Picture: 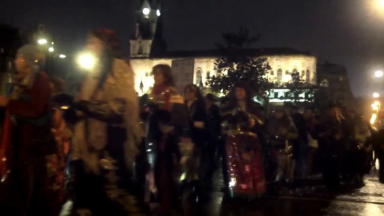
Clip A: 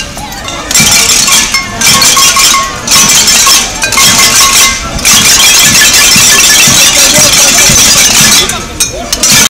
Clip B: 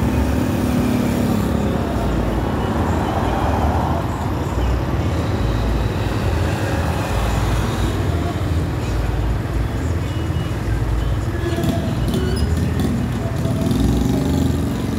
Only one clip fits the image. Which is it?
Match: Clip A